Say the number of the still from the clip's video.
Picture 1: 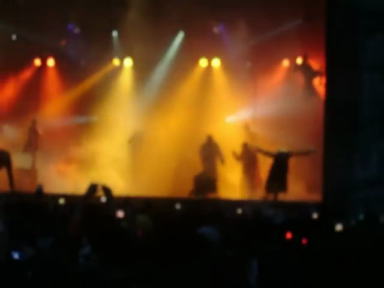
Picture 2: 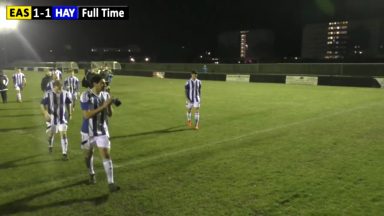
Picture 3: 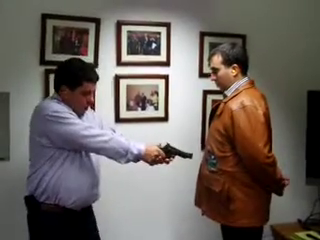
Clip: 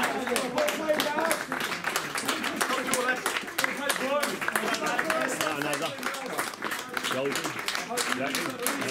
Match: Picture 2